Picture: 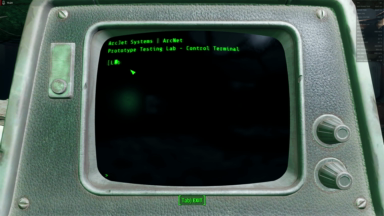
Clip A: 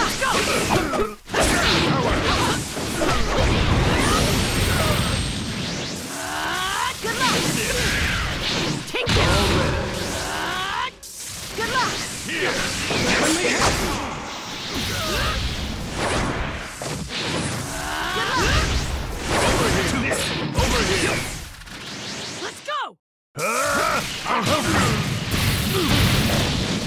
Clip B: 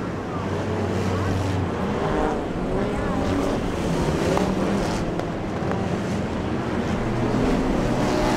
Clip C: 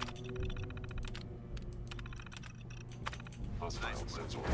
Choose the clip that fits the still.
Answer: C